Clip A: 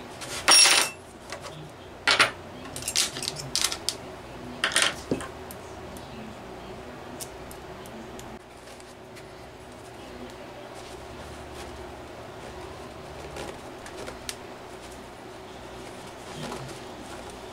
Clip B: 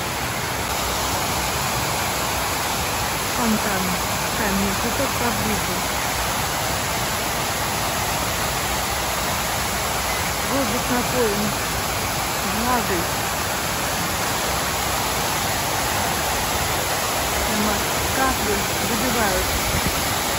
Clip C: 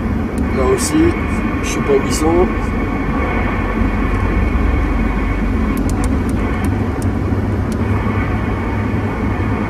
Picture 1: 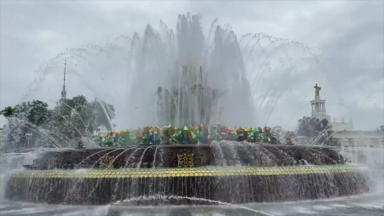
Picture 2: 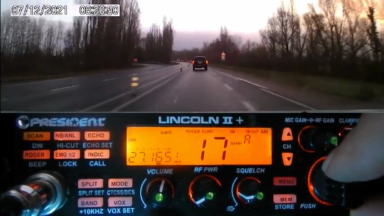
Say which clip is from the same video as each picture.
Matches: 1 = B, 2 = C